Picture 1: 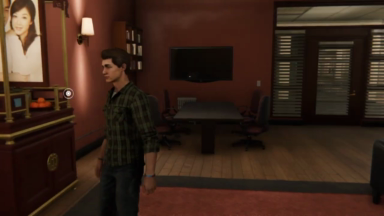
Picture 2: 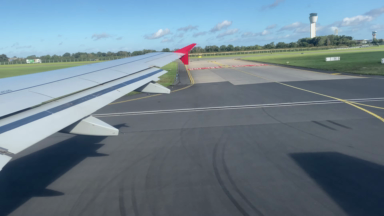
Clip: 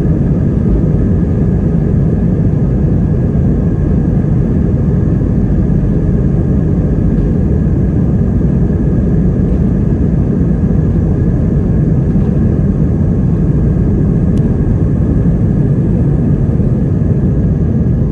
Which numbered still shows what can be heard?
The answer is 2